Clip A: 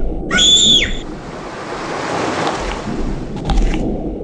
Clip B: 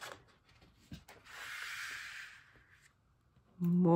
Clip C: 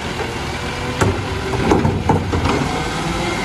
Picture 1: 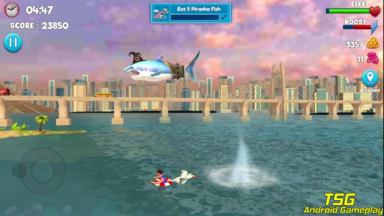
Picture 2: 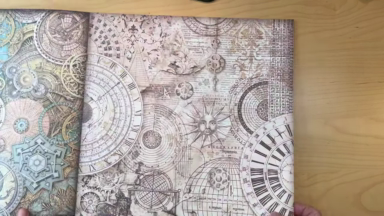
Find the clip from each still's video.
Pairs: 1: A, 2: B